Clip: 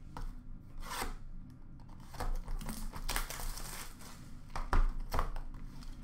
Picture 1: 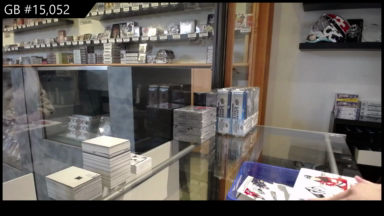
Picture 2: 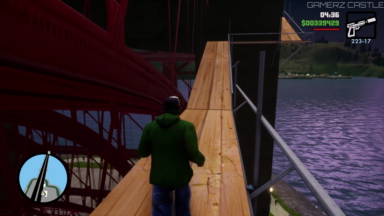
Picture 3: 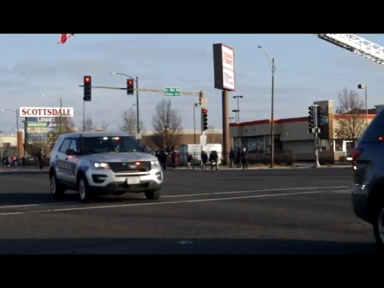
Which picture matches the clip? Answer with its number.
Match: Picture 1